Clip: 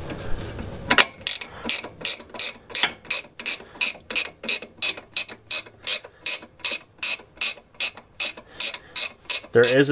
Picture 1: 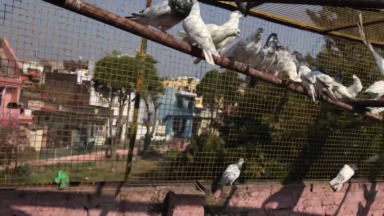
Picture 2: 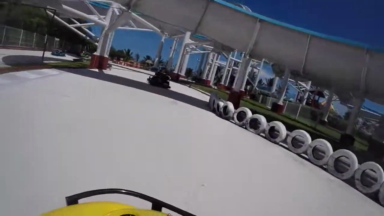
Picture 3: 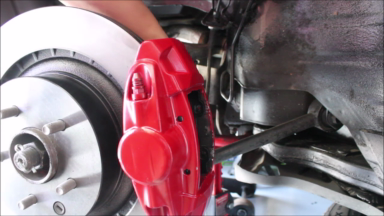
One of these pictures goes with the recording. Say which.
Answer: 3